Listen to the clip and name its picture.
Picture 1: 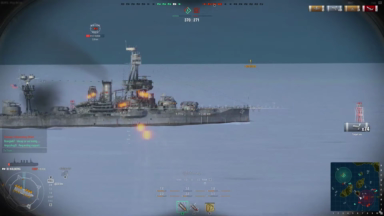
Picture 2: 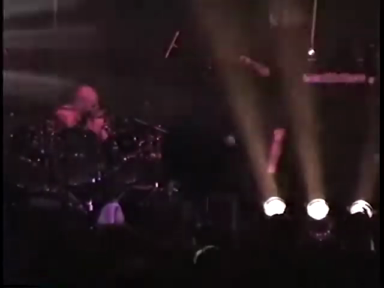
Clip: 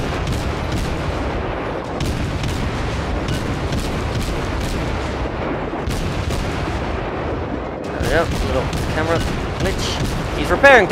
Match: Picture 1